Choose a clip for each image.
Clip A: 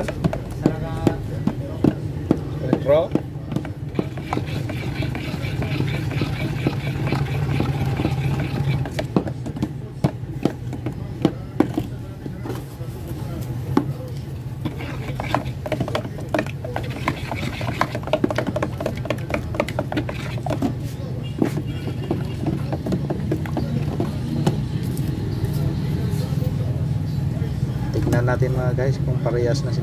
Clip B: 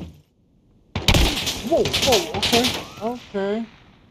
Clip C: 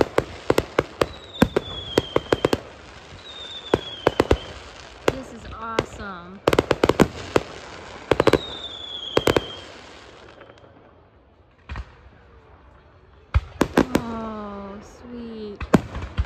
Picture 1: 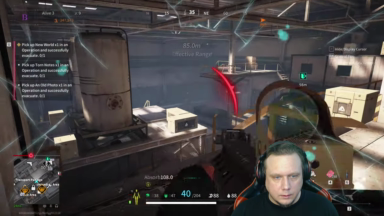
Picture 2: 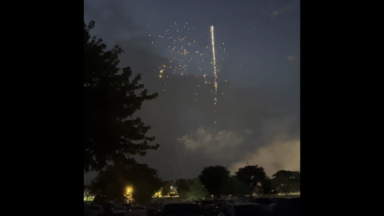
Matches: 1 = B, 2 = C